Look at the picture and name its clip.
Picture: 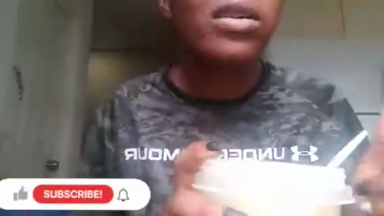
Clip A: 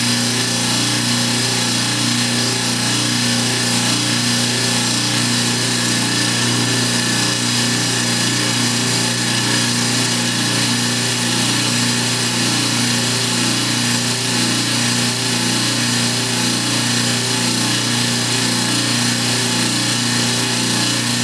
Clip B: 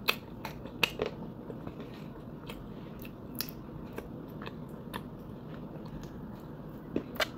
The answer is B